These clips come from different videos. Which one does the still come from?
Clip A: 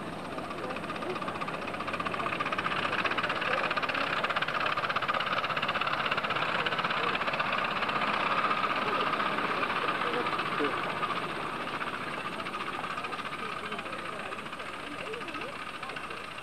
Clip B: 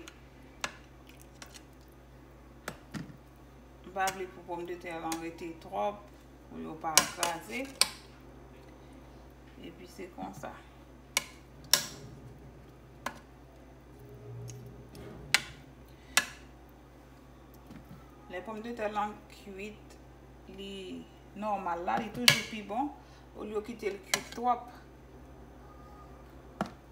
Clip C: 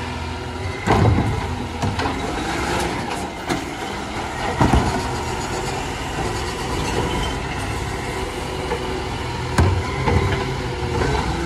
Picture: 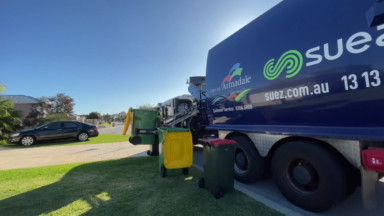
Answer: C